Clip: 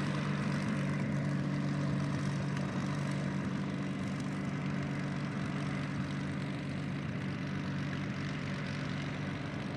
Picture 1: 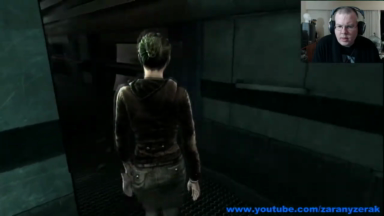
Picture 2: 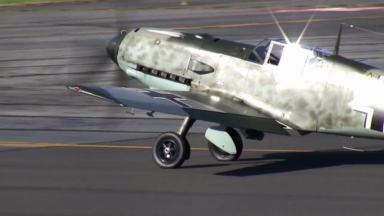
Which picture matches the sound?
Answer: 2